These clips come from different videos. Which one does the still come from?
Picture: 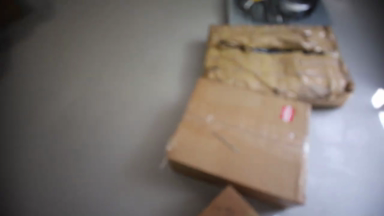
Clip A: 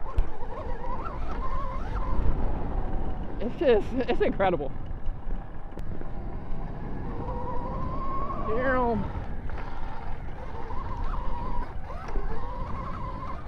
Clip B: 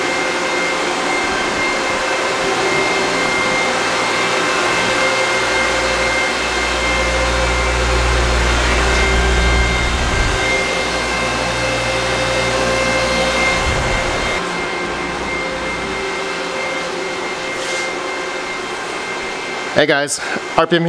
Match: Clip B